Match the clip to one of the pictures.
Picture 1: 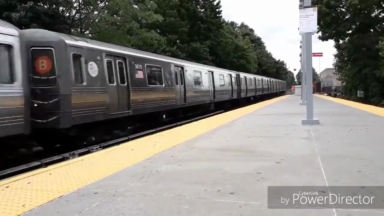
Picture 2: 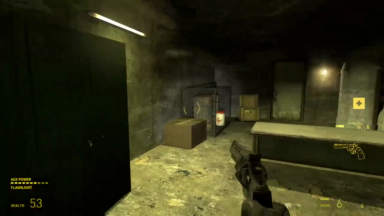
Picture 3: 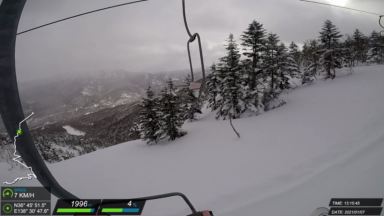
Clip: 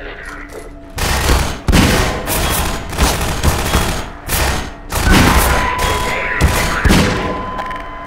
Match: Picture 2